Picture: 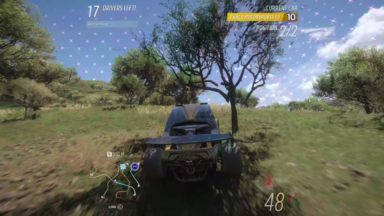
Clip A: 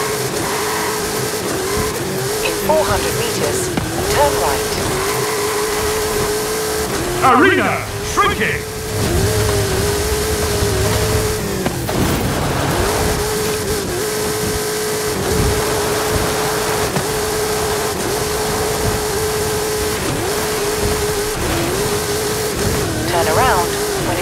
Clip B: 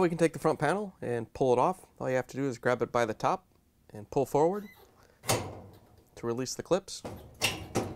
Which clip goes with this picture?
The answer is A